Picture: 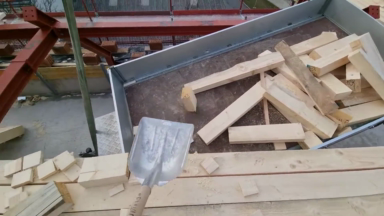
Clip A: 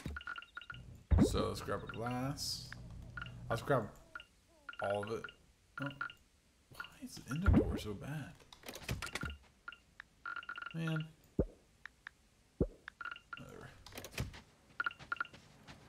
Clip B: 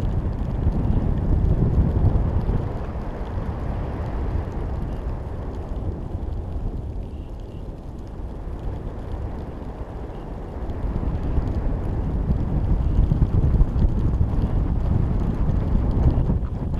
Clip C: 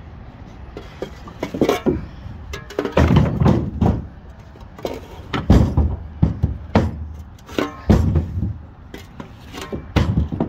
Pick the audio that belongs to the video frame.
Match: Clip C